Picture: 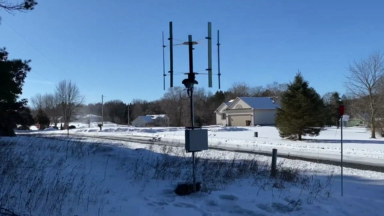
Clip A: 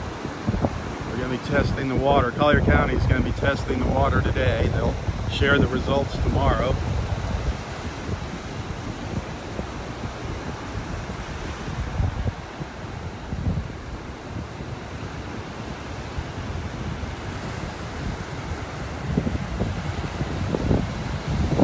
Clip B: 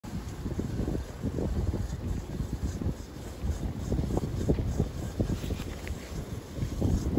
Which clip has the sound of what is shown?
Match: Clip B